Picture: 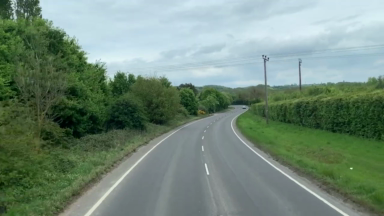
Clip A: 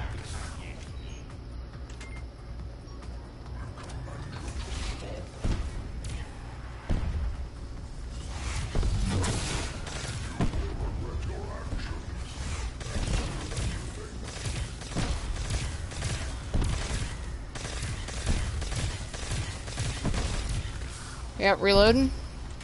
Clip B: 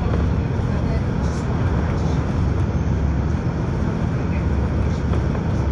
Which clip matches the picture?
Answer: B